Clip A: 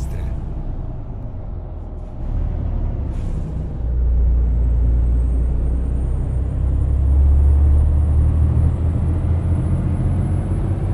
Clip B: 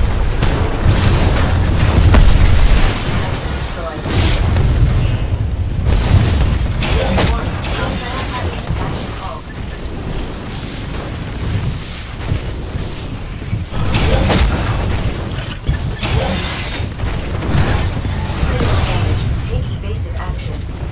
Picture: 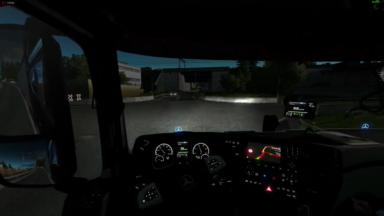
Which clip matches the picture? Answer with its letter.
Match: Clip A